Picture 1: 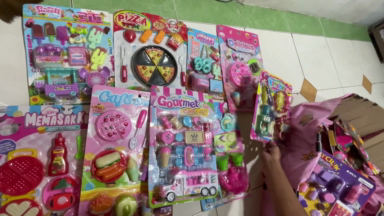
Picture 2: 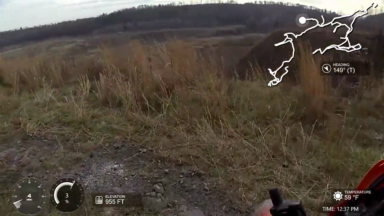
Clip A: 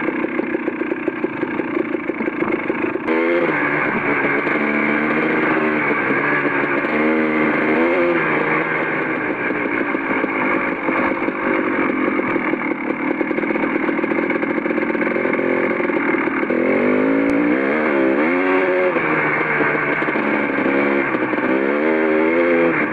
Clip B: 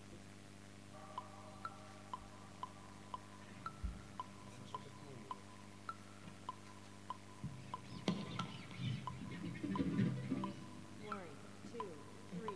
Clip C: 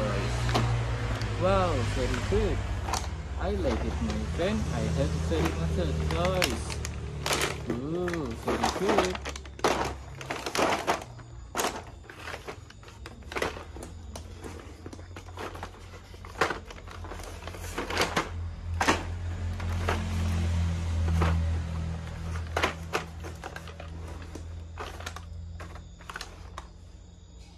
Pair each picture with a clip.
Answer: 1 C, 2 A